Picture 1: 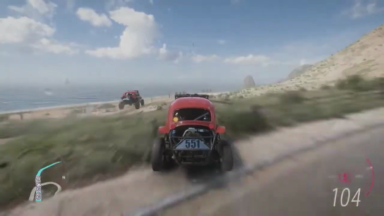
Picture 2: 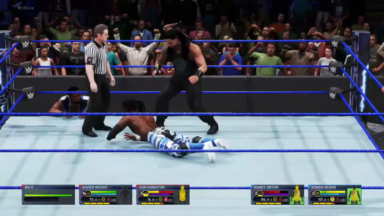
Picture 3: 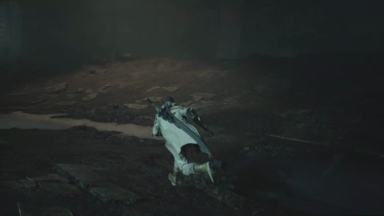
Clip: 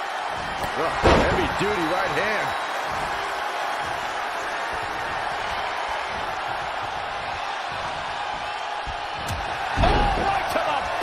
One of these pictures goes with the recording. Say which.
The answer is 2